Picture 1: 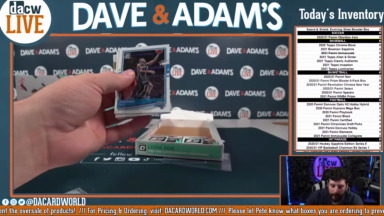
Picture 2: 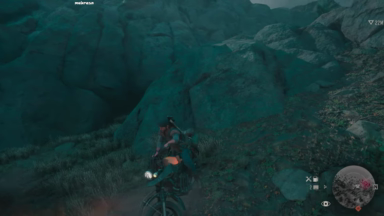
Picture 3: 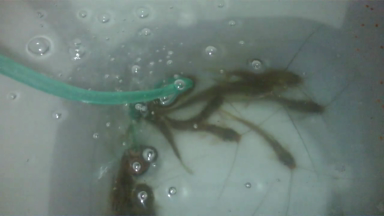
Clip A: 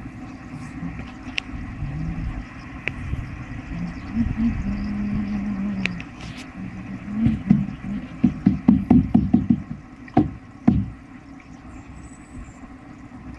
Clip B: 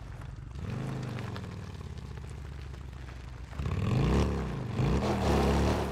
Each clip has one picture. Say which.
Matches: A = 3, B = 2